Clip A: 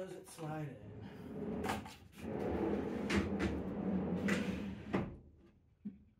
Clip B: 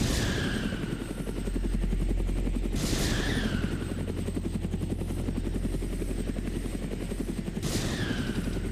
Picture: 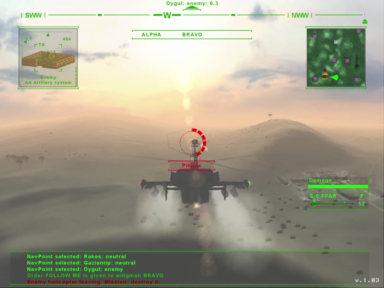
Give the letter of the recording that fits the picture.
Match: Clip B